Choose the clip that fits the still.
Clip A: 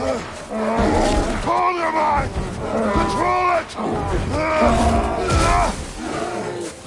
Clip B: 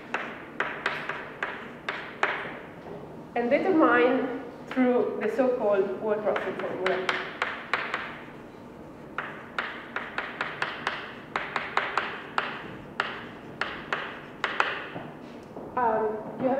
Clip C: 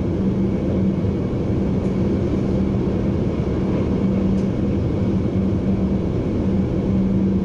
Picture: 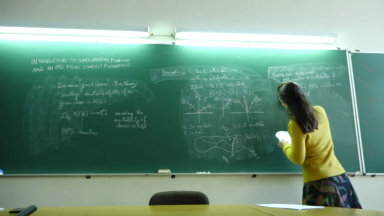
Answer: B